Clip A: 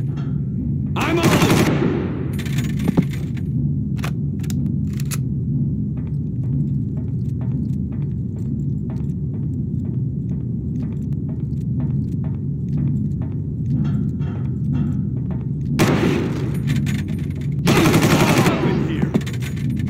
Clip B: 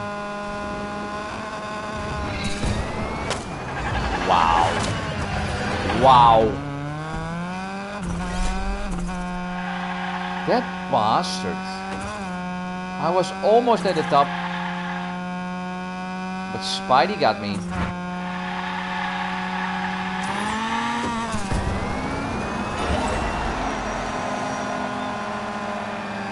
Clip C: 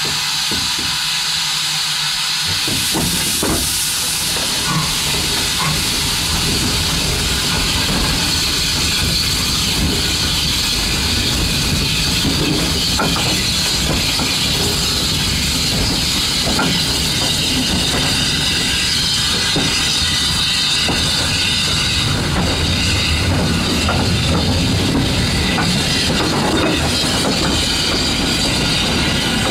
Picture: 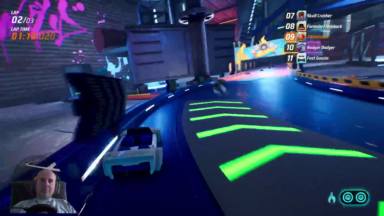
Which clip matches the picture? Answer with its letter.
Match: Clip B